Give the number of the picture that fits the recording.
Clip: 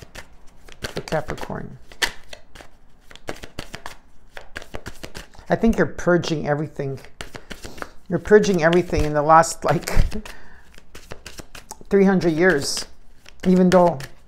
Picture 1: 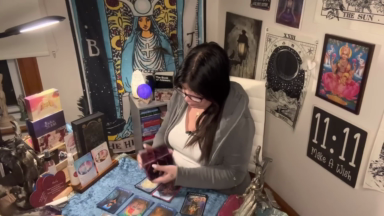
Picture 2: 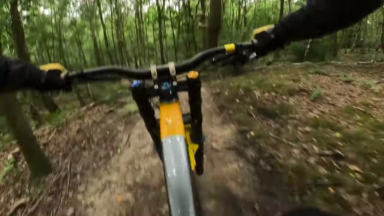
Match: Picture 1